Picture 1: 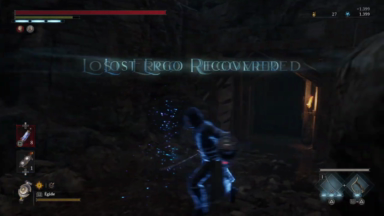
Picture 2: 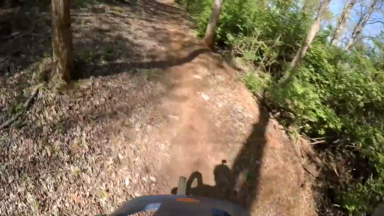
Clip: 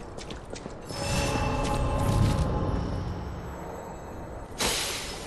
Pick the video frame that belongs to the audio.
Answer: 1